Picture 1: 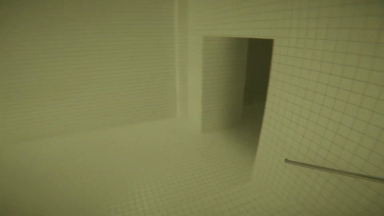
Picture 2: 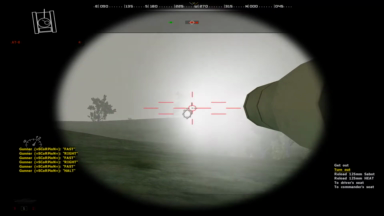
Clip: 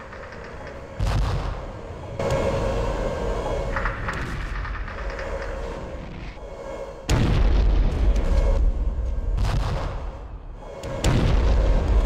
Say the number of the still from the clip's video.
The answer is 2